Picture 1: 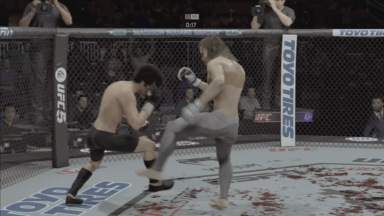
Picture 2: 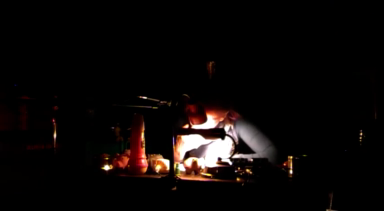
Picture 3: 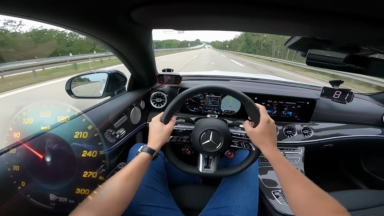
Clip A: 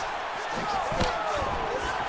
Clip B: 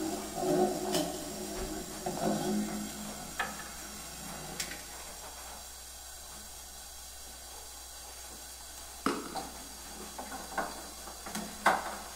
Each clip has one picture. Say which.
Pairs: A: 1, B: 2